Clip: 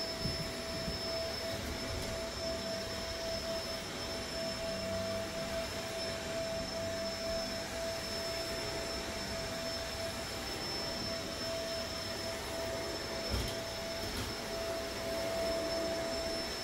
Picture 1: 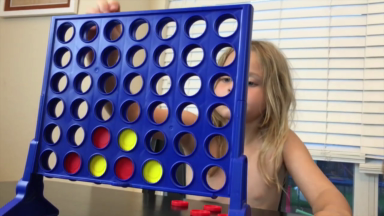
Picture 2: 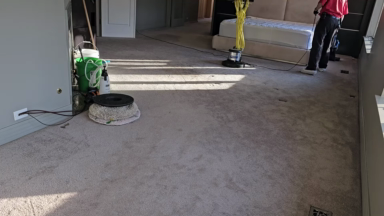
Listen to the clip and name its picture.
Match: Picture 2